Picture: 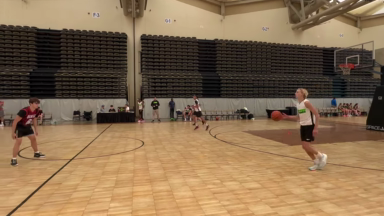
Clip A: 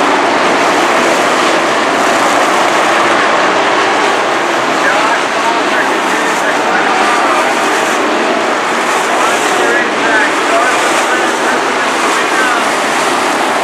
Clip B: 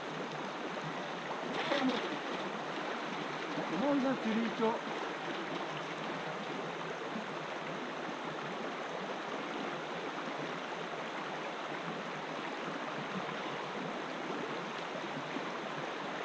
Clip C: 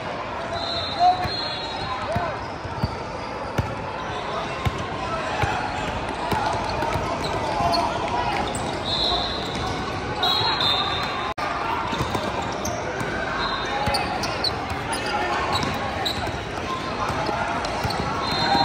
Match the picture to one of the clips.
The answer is C